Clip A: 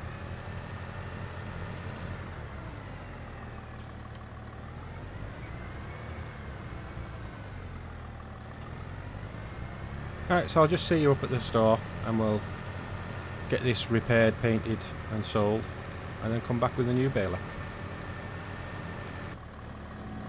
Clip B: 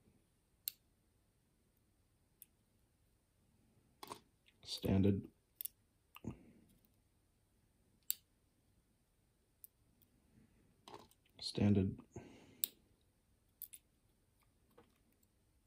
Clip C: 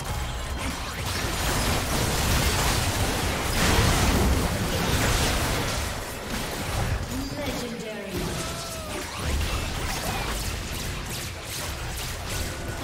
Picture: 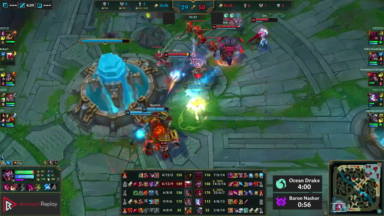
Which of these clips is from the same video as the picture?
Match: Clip C